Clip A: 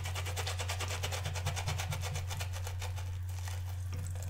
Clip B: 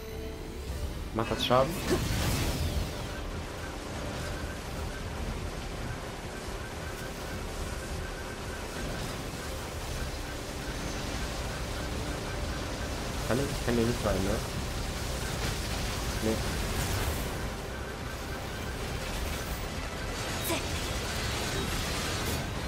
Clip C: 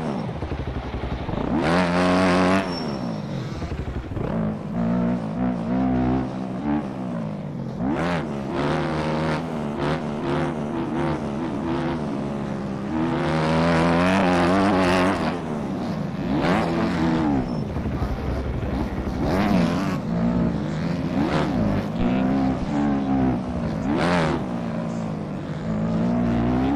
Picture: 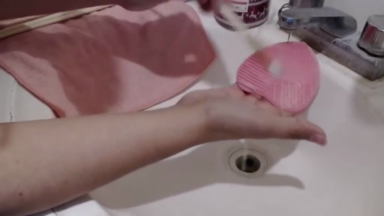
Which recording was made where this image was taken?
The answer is A